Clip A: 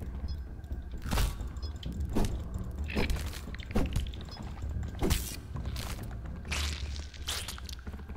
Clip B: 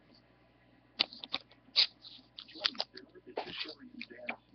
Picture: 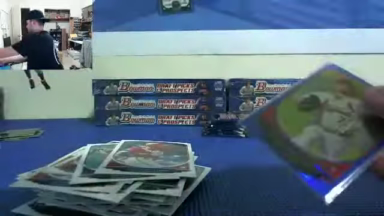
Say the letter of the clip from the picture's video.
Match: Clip B